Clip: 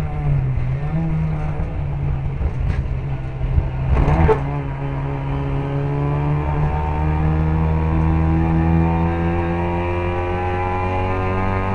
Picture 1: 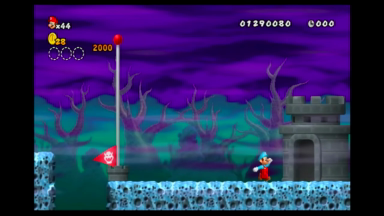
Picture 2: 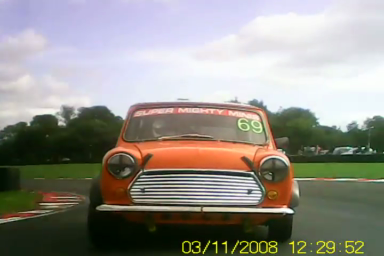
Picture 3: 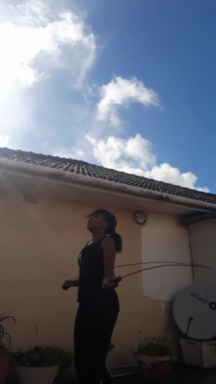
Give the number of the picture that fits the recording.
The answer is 2